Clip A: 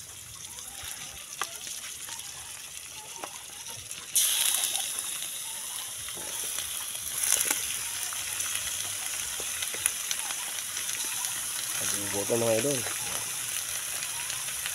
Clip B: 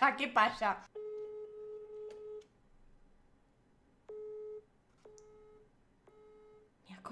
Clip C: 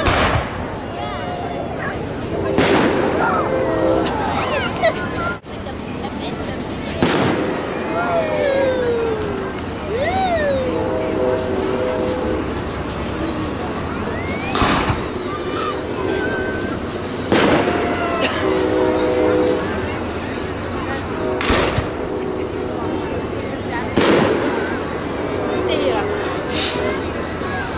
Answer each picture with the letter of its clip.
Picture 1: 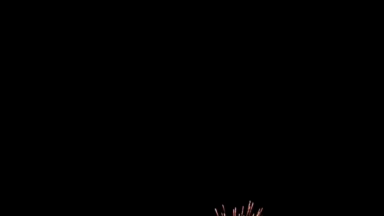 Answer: C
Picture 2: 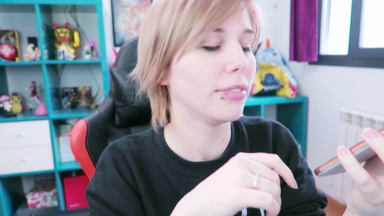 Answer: B